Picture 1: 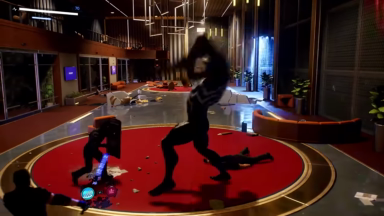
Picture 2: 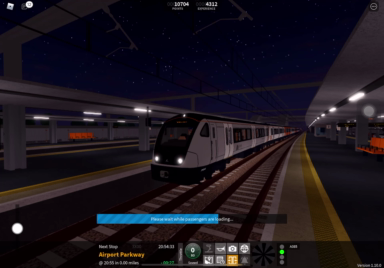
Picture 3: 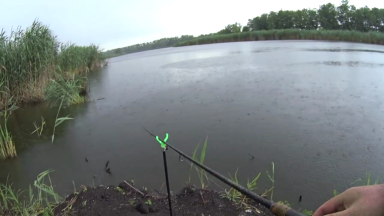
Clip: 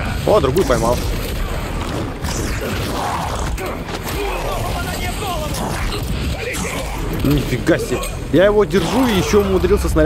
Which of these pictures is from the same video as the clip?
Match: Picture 1